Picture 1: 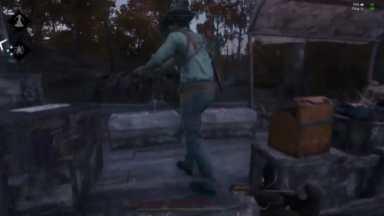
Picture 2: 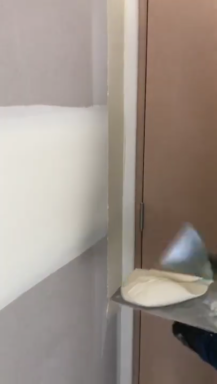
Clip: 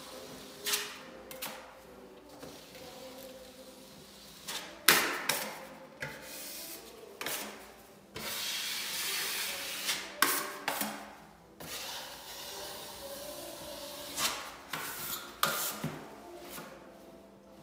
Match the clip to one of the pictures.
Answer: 2